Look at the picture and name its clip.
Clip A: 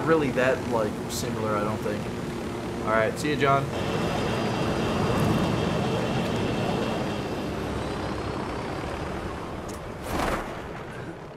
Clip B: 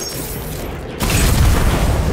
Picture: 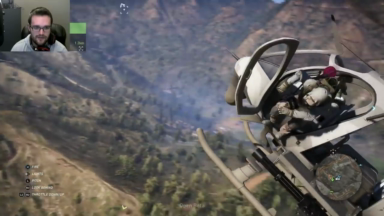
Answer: A